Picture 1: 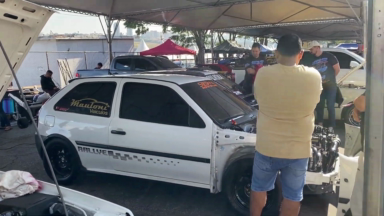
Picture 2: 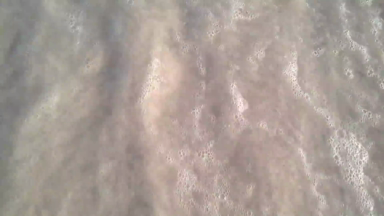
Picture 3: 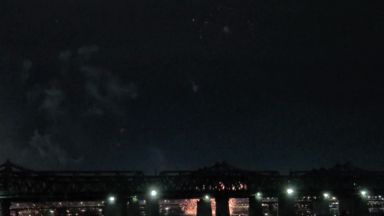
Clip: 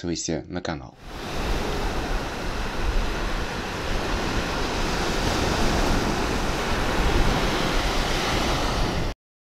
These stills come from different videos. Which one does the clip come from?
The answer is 2